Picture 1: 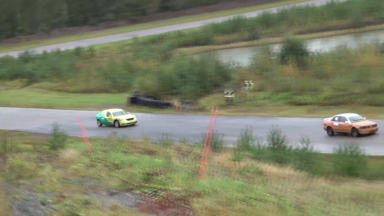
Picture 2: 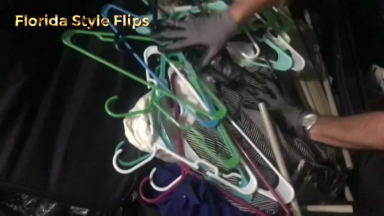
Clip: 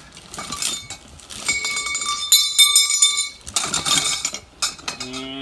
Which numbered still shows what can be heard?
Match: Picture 2